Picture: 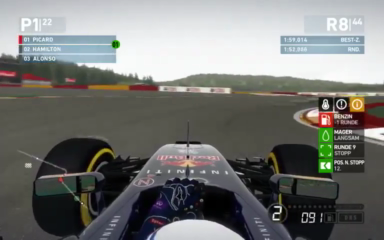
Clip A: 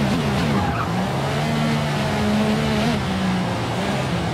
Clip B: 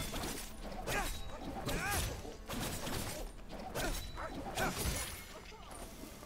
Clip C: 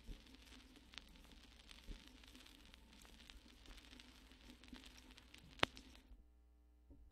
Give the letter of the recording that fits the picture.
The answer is A